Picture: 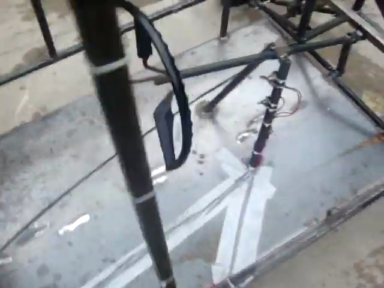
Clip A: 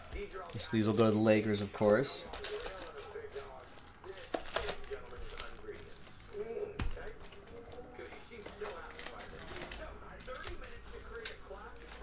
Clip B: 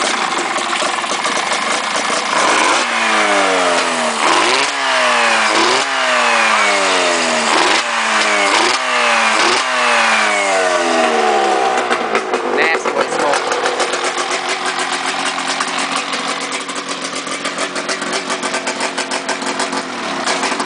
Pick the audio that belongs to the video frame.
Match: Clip B